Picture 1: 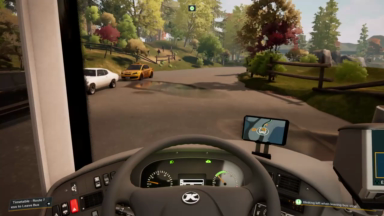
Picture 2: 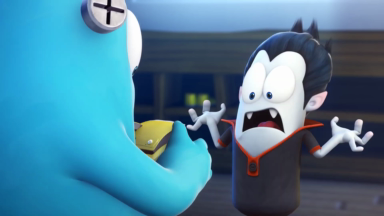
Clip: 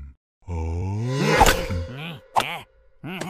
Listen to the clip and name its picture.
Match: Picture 2